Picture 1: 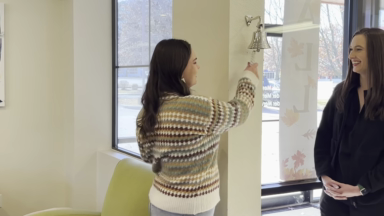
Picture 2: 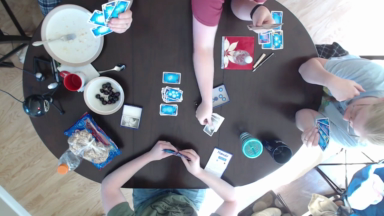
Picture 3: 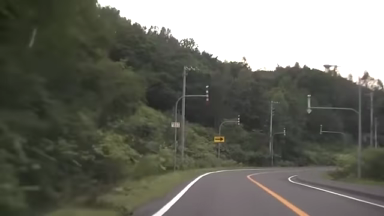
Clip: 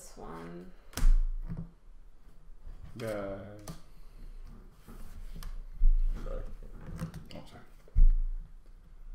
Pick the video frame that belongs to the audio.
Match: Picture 2